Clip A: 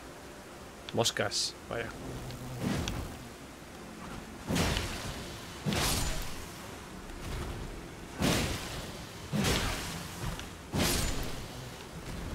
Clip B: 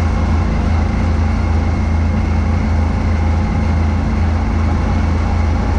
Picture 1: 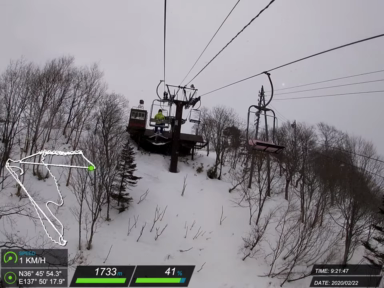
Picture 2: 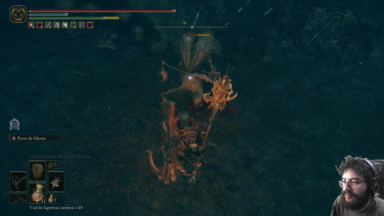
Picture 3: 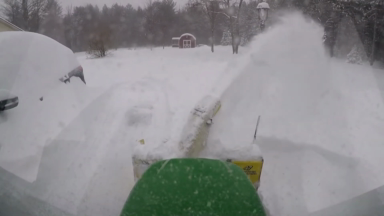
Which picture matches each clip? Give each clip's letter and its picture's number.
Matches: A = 2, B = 3